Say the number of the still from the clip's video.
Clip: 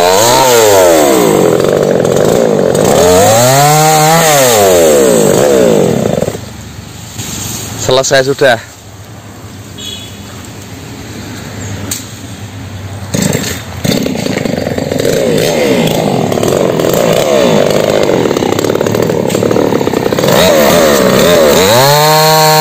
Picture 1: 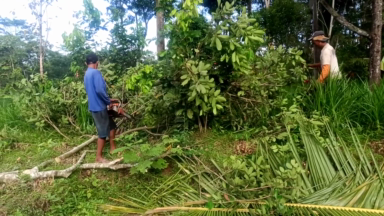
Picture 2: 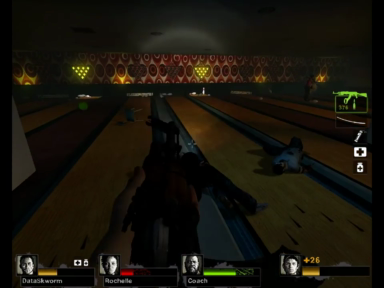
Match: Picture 1